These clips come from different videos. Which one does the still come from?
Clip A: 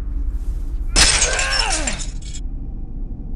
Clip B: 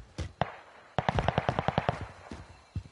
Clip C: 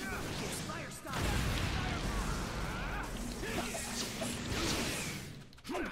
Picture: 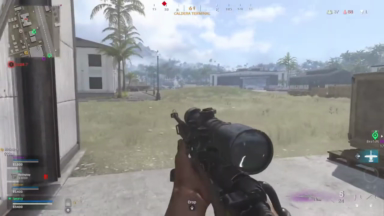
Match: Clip B